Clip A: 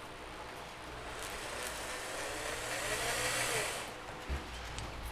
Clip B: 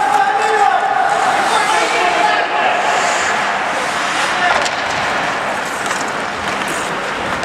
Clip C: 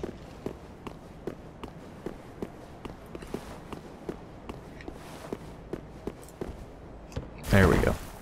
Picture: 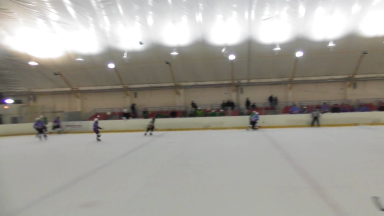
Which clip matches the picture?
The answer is B